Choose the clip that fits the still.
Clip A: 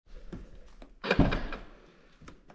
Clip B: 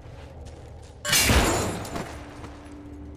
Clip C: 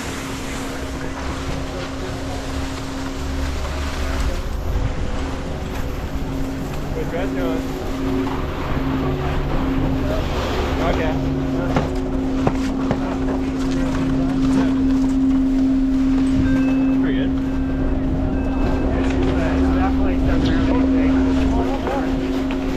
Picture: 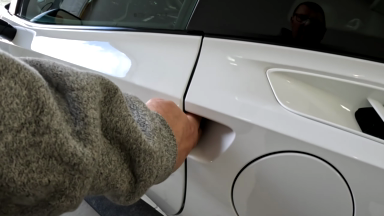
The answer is A